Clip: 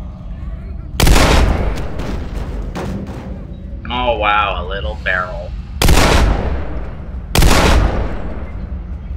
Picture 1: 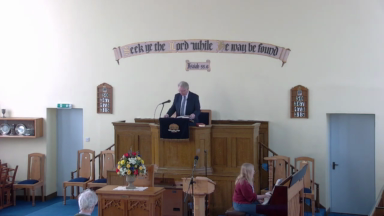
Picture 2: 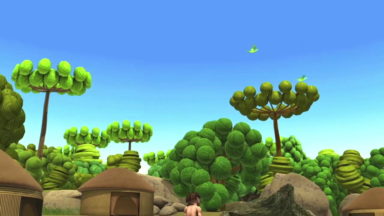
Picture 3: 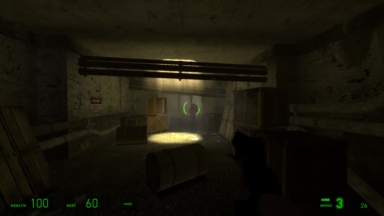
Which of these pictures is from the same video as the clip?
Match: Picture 3